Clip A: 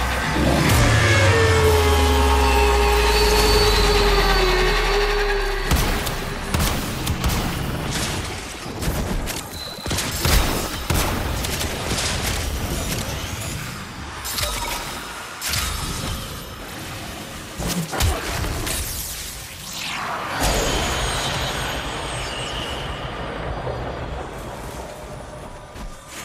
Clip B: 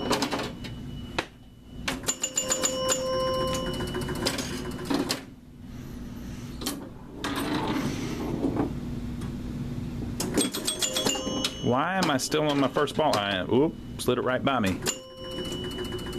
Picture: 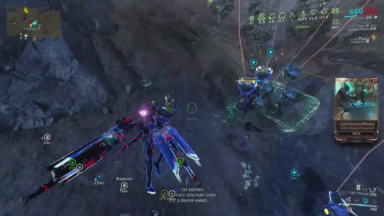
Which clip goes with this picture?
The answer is A